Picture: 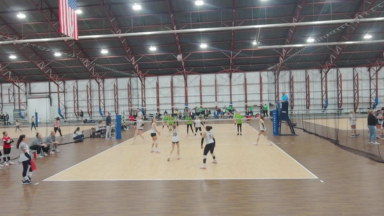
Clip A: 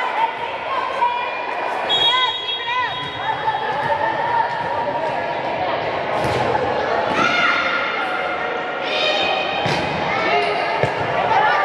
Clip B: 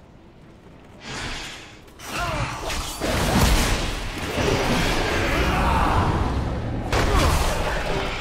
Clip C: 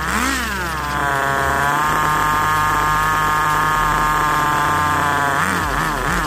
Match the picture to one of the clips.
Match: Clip A